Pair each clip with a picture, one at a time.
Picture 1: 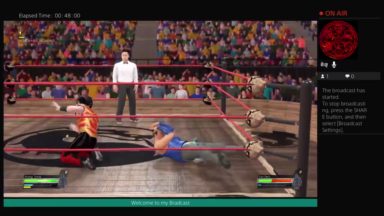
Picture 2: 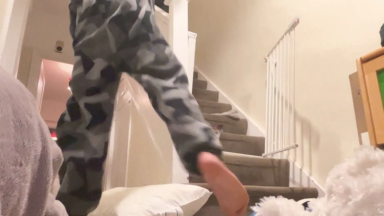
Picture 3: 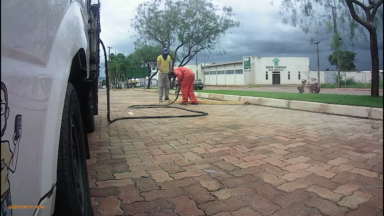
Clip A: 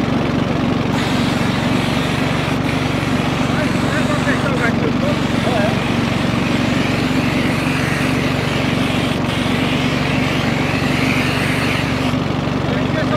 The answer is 3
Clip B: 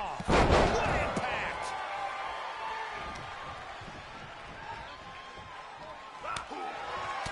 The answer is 1